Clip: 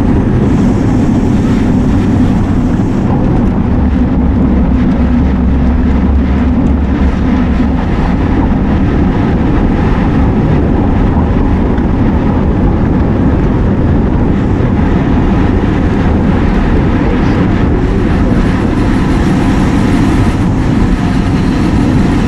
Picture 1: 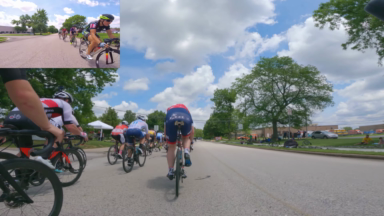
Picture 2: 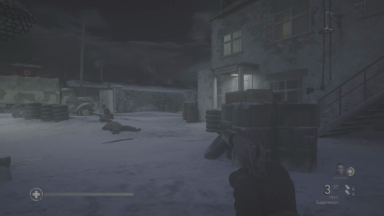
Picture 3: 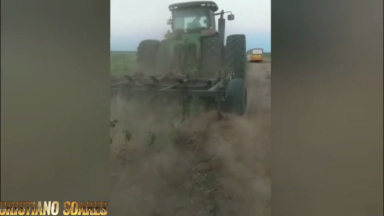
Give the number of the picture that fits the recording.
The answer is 1